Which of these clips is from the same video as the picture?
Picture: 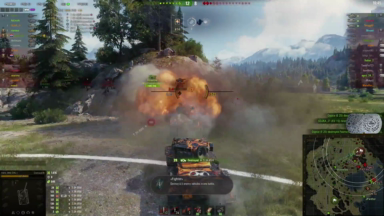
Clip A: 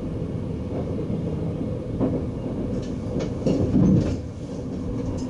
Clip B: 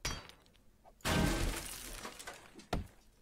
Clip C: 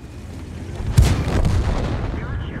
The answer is C